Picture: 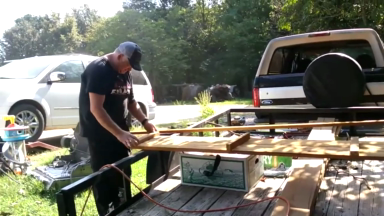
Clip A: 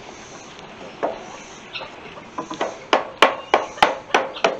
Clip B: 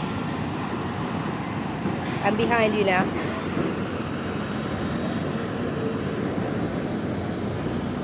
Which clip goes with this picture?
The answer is A